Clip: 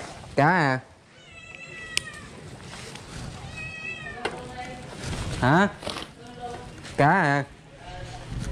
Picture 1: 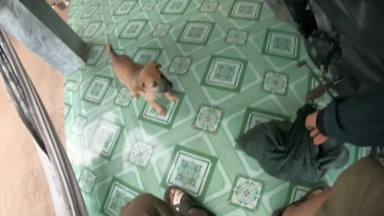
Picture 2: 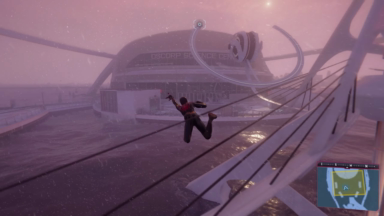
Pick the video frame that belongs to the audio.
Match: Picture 1